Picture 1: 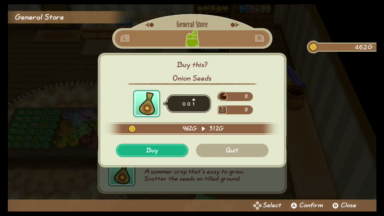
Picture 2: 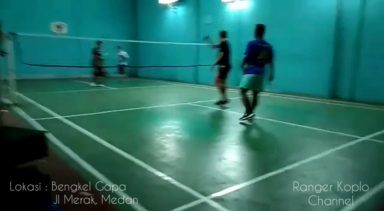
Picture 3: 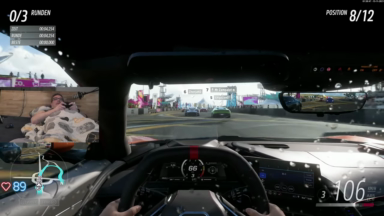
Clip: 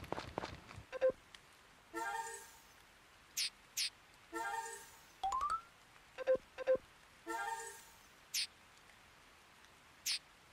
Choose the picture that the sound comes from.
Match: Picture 1